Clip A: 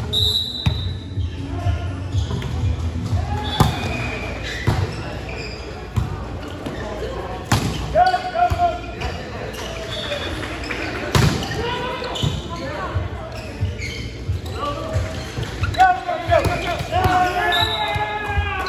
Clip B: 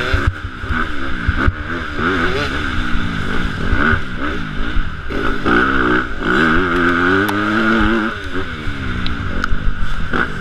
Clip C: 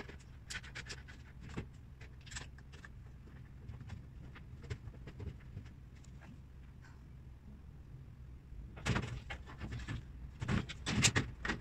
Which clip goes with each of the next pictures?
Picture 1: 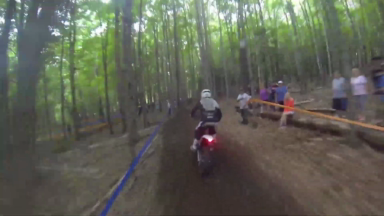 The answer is B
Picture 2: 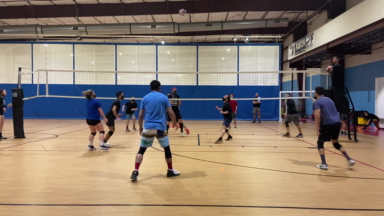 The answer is A